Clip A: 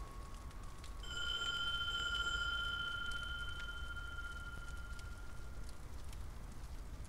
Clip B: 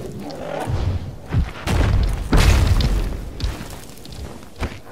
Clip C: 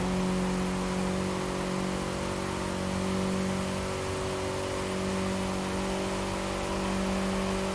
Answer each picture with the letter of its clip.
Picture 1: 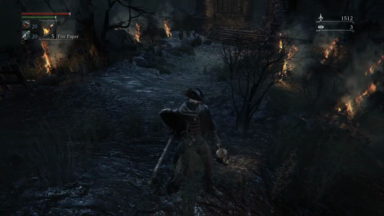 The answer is A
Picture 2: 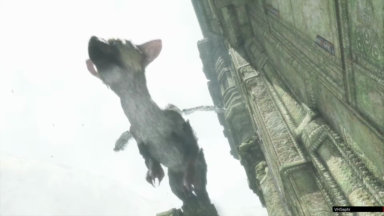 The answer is B